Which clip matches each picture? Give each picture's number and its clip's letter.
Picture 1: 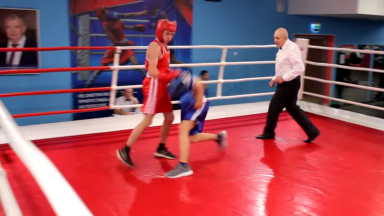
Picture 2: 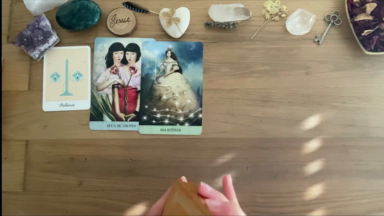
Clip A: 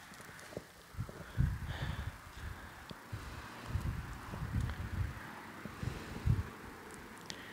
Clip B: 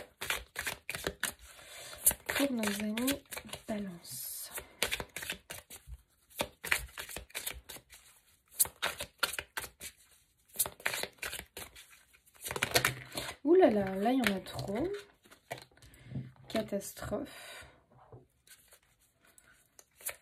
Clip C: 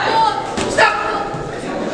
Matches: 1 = C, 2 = B